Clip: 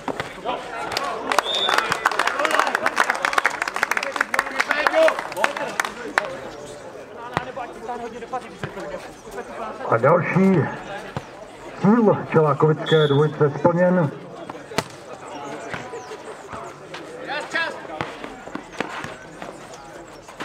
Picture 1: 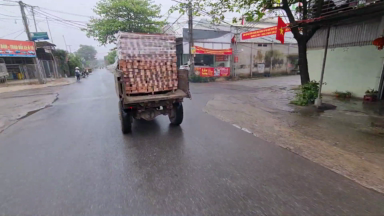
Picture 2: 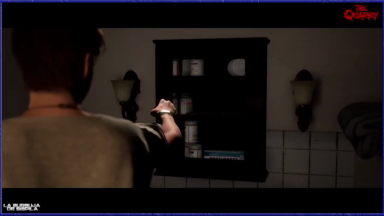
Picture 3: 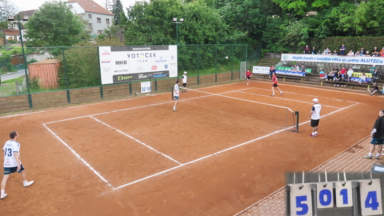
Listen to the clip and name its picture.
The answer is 3